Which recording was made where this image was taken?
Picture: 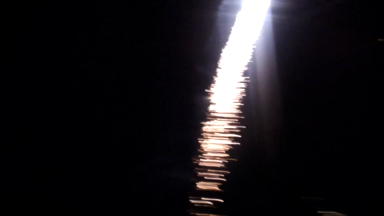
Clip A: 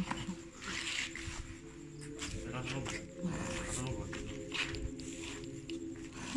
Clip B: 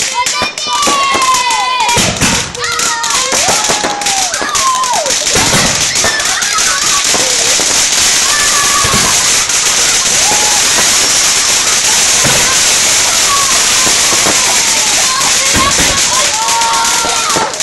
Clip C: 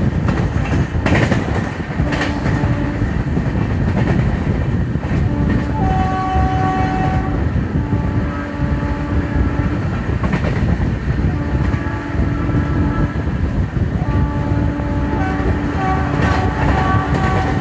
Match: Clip B